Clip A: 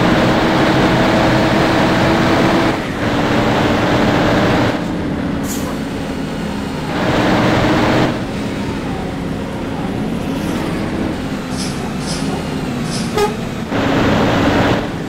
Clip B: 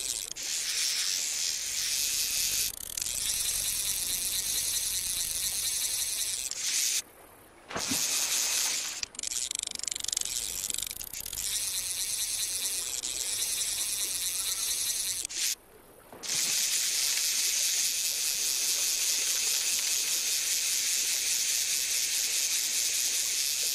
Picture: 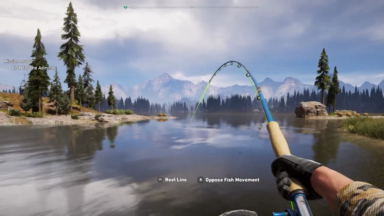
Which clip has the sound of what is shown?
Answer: B